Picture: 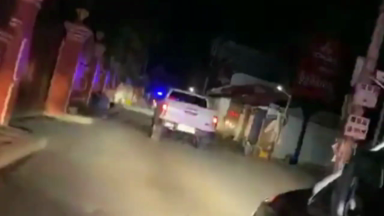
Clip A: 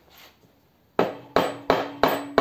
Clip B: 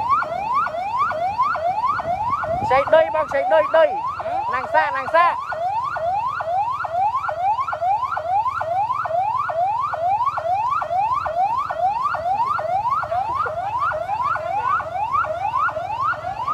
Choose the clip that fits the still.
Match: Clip B